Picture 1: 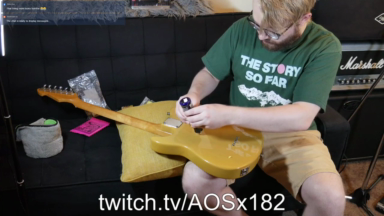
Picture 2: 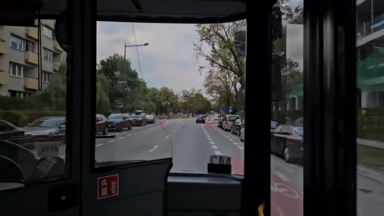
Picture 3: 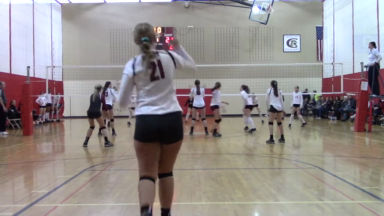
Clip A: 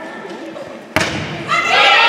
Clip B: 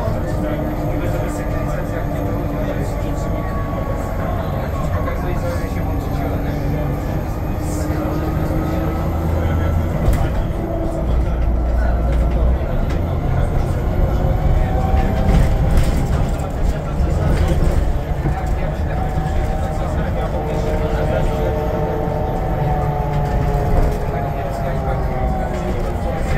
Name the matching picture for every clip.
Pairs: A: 3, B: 2